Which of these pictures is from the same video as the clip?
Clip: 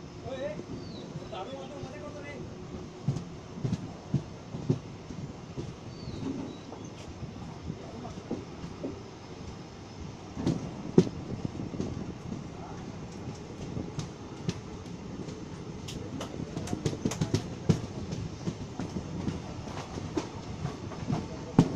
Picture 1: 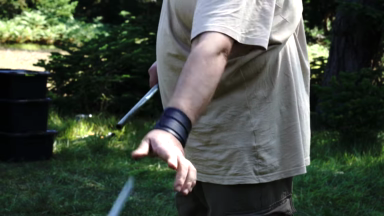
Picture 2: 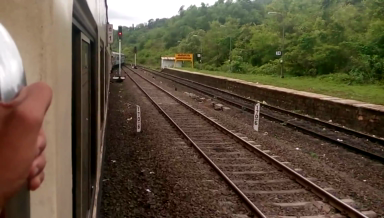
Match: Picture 2